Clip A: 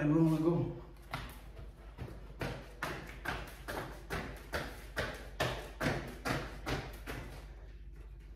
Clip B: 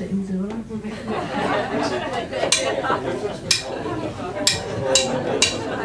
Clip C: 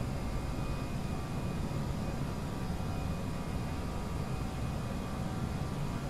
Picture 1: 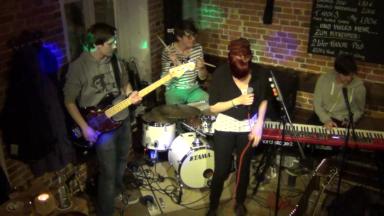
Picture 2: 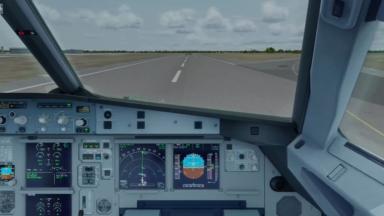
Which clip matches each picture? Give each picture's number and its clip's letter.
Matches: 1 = B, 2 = C